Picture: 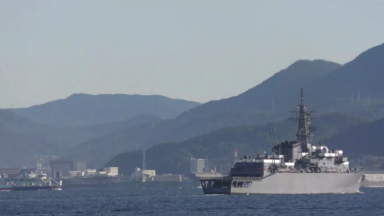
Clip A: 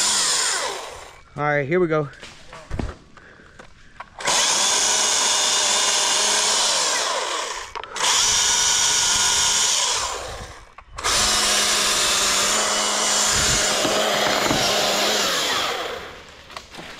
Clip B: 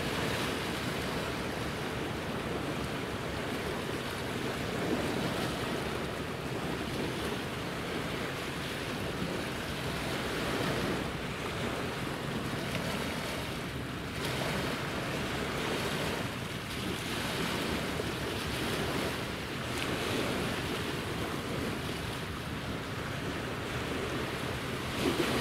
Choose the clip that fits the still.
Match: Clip B